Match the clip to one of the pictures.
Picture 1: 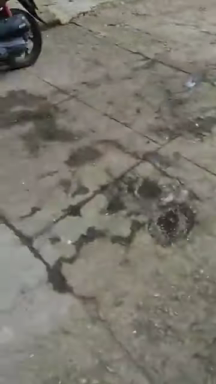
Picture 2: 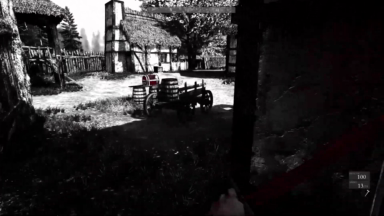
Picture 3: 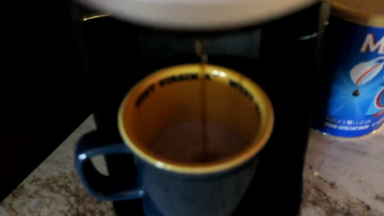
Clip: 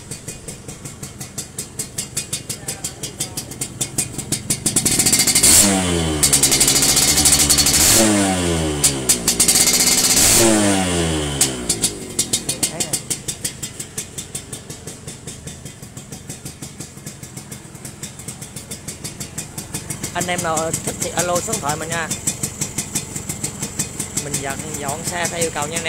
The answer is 1